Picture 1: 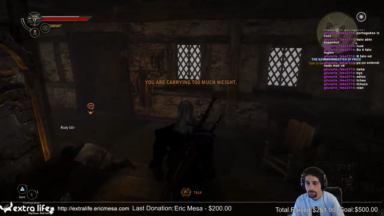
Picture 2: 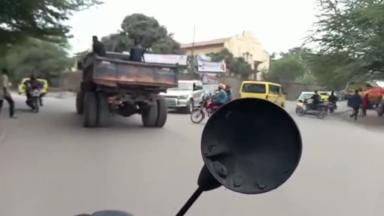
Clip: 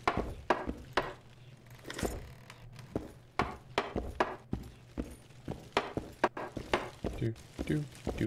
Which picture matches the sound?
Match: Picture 1